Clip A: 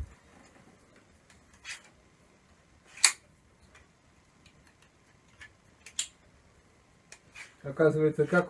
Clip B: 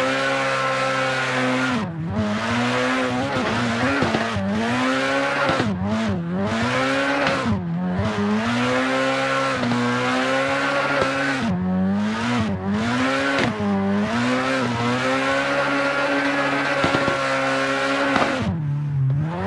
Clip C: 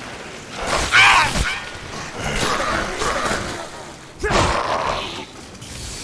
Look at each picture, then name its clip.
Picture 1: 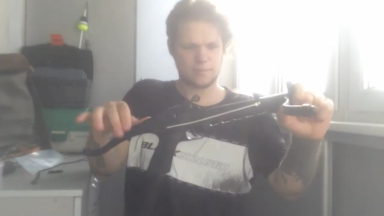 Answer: A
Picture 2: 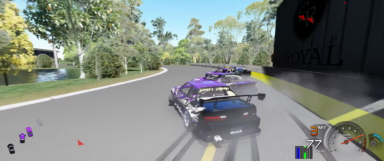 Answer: B